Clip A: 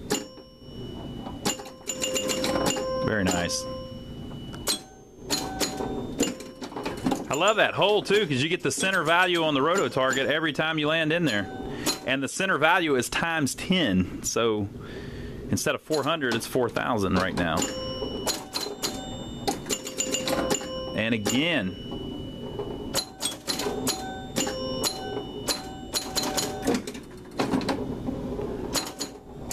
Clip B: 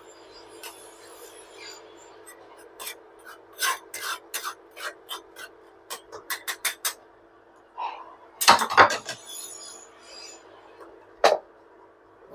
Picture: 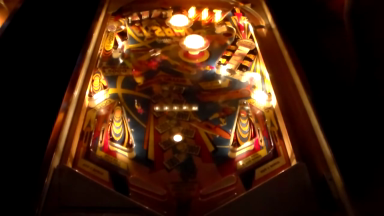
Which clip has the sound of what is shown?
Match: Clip A